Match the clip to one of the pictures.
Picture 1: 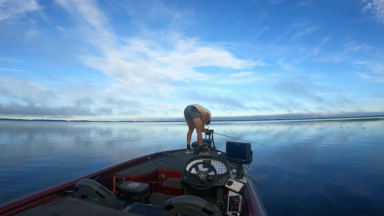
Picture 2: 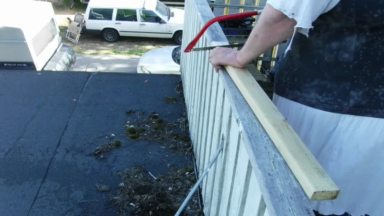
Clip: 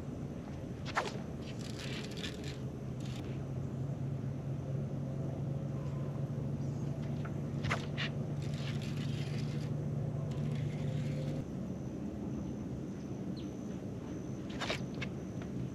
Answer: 1